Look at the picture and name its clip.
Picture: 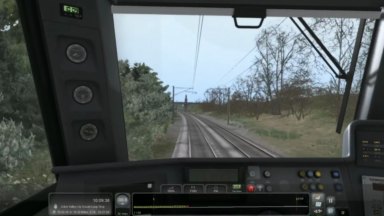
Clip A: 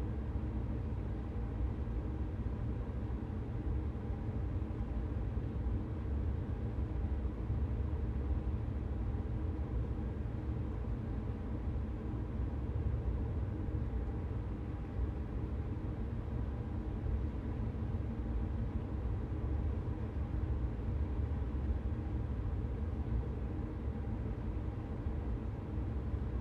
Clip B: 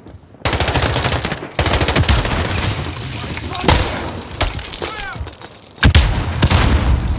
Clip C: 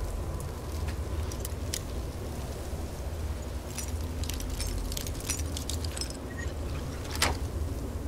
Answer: A